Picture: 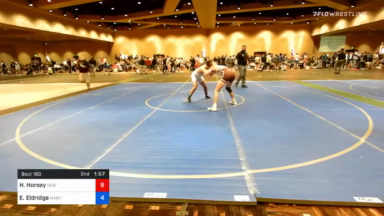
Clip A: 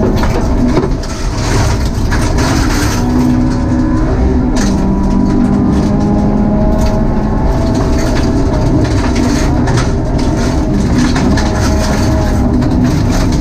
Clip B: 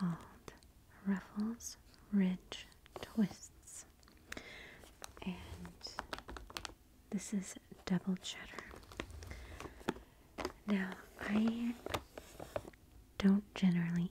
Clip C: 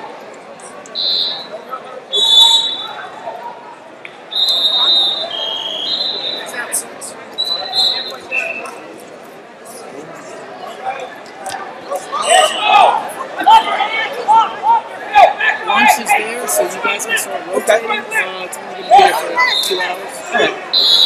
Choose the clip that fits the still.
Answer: C